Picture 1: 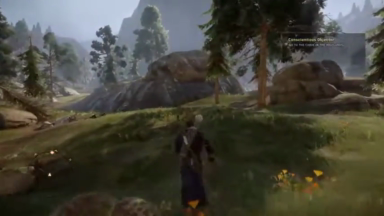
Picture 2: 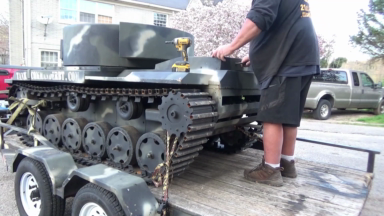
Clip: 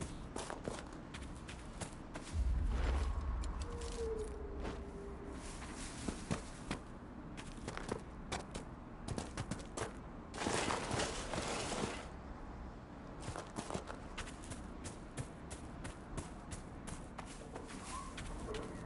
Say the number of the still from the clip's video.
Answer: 1